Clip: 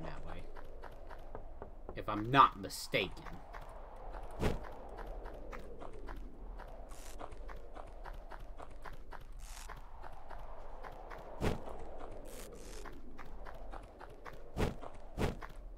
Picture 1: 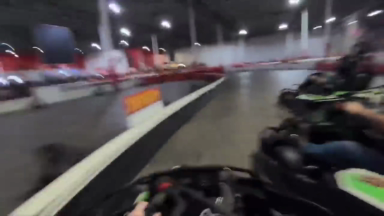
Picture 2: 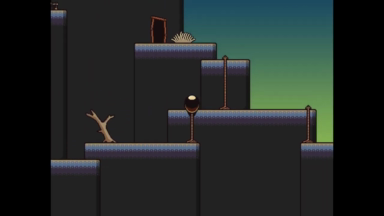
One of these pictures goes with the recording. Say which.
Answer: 2